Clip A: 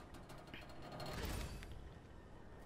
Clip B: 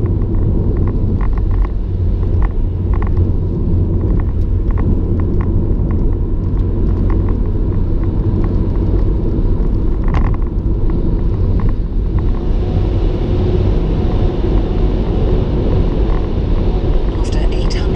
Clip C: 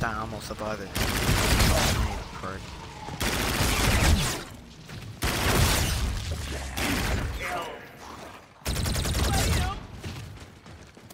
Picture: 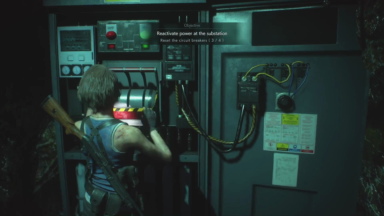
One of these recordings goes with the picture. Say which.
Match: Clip A